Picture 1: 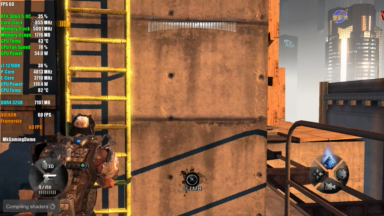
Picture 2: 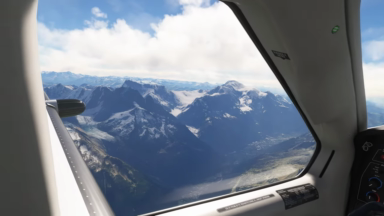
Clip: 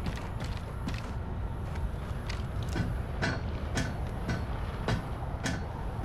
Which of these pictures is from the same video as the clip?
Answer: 1